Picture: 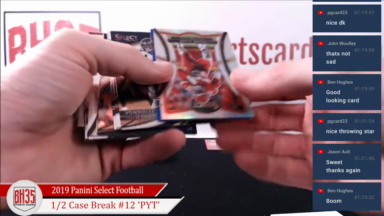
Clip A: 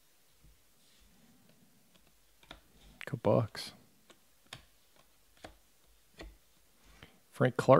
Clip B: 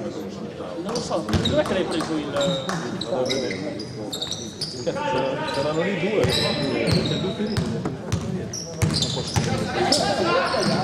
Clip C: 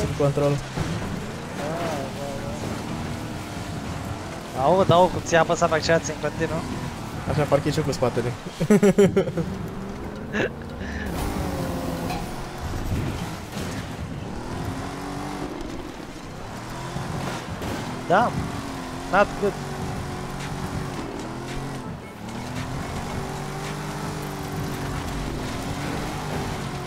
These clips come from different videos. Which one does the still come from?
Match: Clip A